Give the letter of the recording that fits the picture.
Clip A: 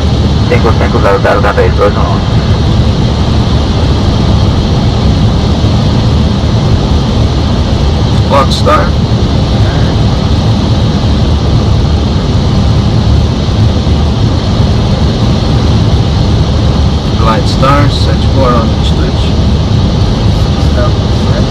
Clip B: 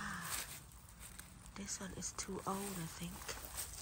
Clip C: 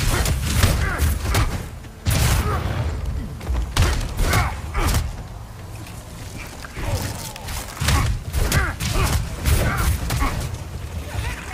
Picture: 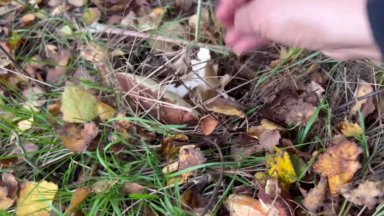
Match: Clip B